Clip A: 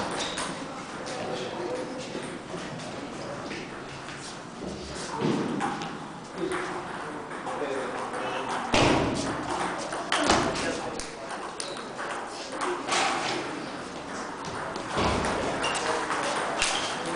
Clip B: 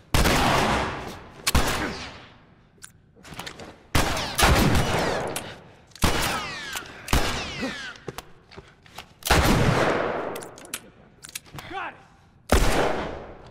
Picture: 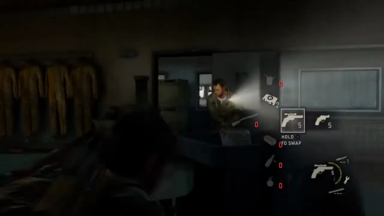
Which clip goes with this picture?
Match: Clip B